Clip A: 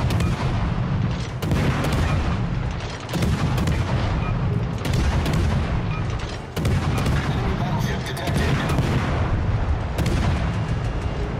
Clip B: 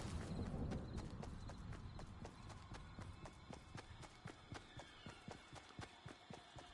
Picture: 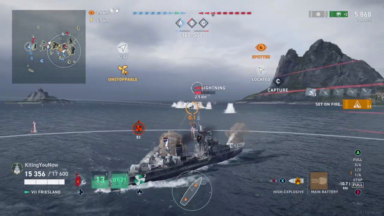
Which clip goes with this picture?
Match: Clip A